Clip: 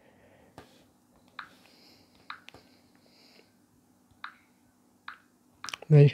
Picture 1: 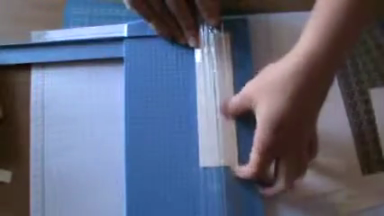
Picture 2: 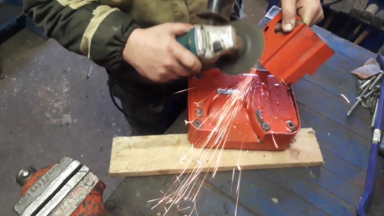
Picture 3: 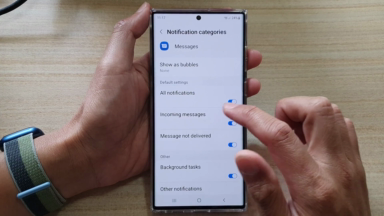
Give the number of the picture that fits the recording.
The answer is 3